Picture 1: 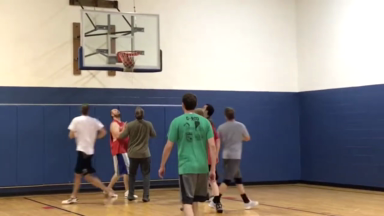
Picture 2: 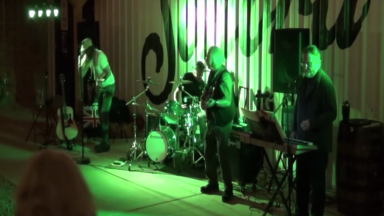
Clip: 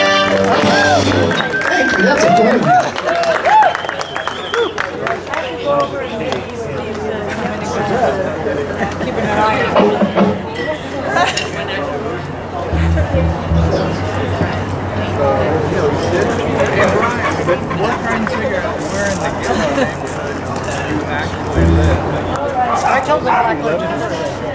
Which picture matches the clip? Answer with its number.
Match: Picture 2